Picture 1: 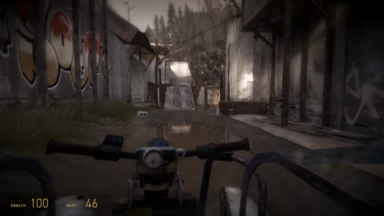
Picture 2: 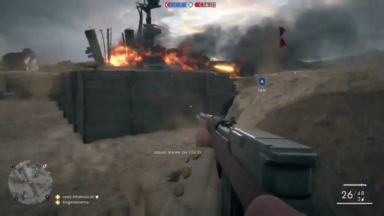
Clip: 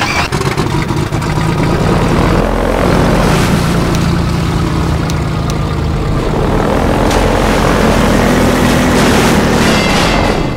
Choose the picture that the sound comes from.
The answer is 1